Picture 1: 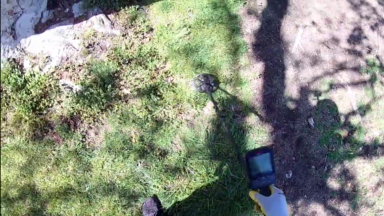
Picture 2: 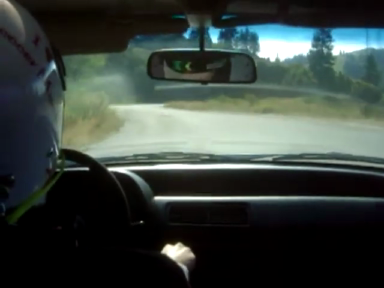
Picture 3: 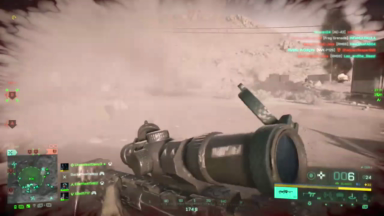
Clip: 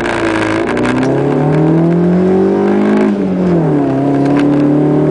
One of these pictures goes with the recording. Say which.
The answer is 2